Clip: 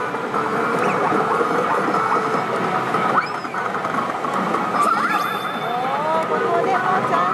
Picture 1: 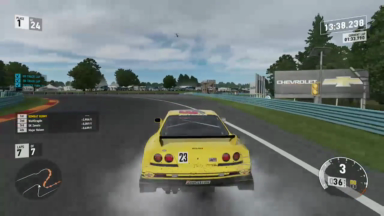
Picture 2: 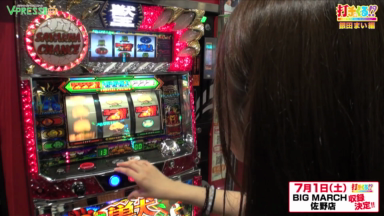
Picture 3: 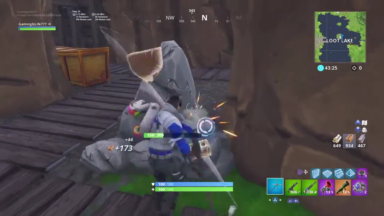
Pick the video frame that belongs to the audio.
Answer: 2